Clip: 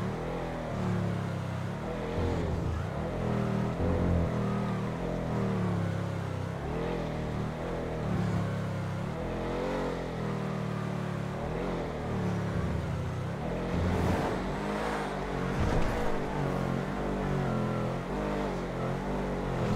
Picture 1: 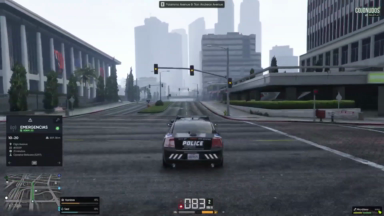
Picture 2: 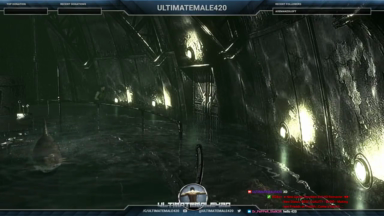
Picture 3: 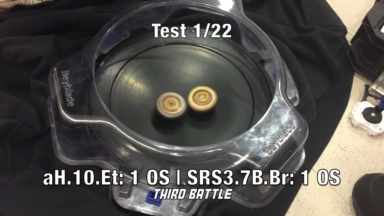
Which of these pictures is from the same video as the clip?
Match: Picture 1